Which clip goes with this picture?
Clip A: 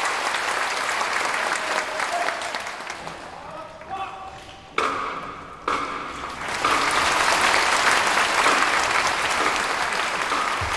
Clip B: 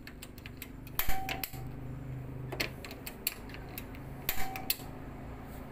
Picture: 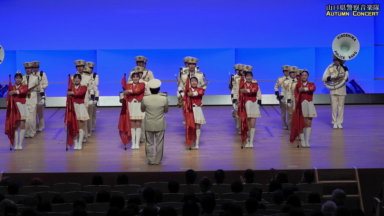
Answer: A